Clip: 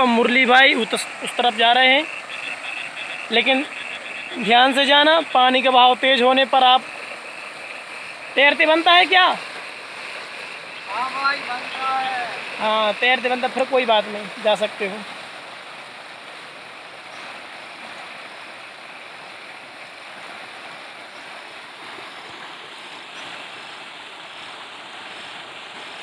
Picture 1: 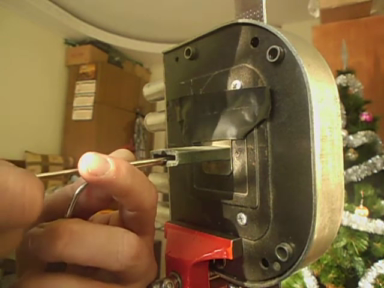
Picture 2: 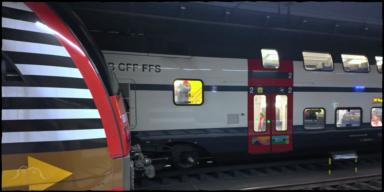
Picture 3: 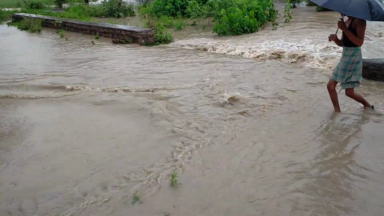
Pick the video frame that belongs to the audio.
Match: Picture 3